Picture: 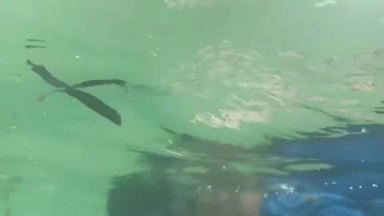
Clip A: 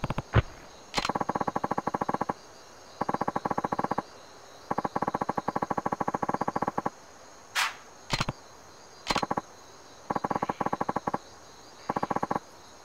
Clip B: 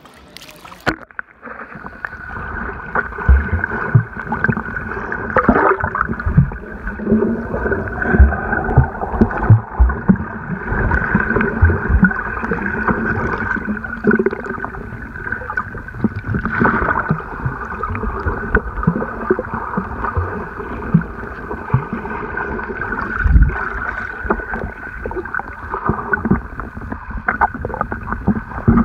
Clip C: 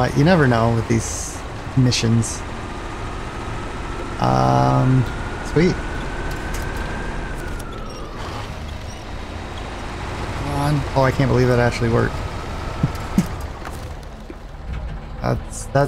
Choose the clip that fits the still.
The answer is B